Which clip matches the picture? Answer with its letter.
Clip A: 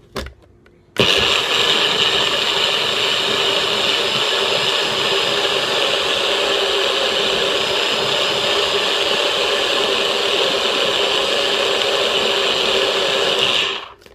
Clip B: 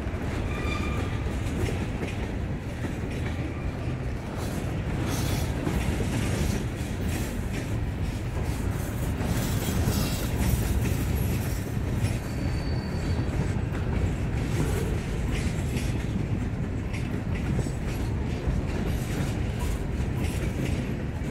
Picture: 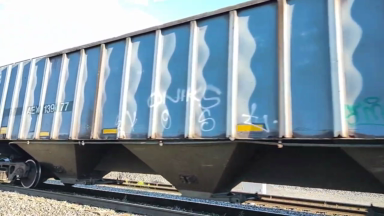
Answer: B